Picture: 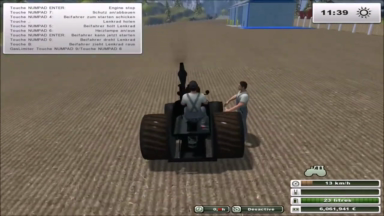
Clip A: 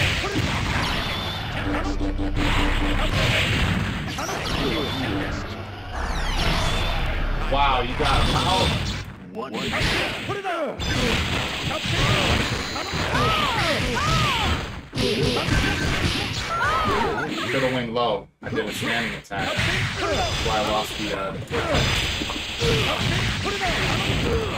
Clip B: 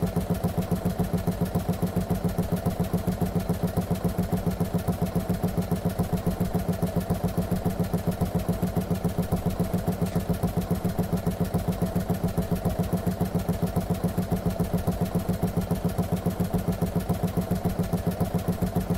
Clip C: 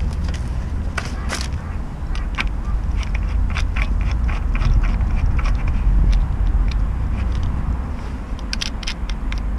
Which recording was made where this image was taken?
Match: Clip B